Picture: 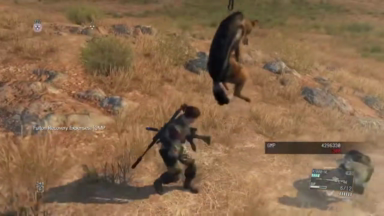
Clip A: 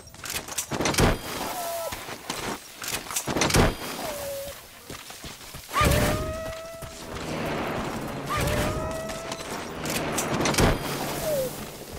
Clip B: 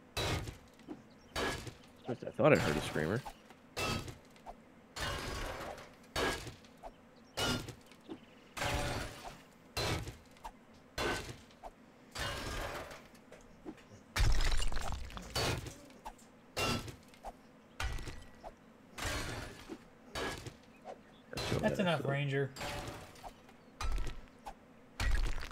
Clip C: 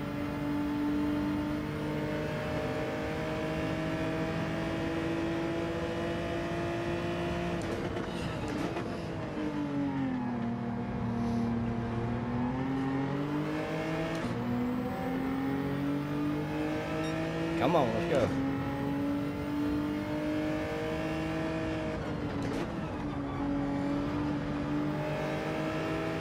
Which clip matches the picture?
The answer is A